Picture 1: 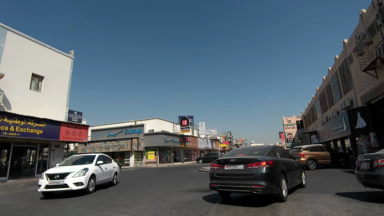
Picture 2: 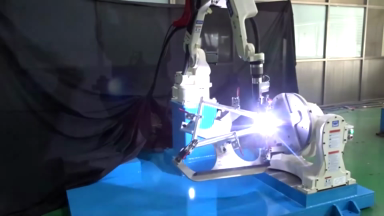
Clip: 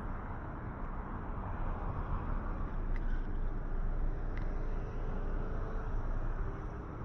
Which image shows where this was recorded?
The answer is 1